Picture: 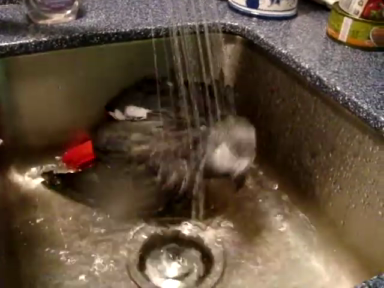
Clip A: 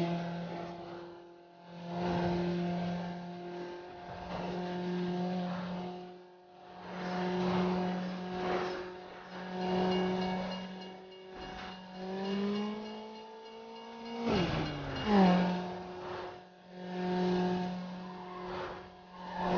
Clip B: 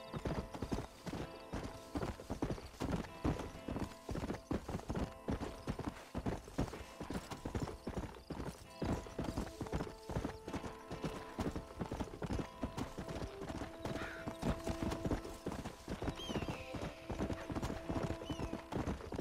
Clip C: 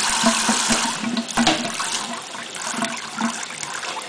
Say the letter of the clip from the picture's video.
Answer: C